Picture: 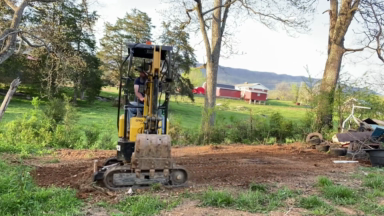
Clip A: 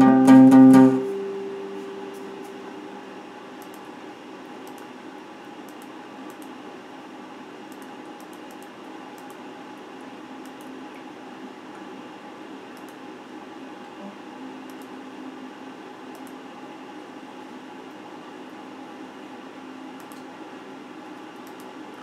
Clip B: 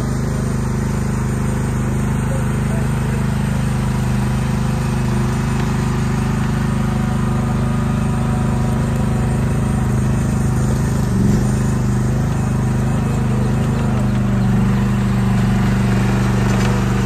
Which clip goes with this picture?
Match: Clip B